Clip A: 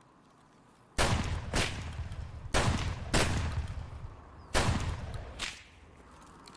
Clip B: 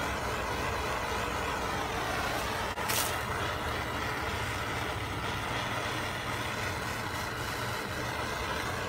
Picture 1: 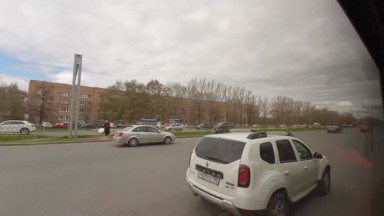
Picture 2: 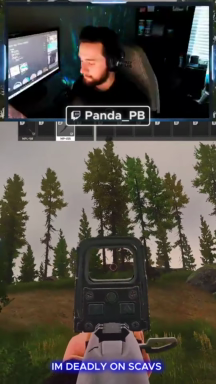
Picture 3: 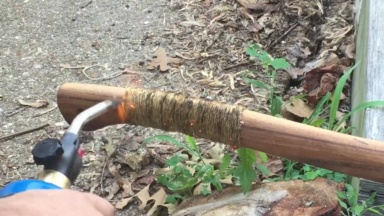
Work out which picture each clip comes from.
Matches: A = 2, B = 3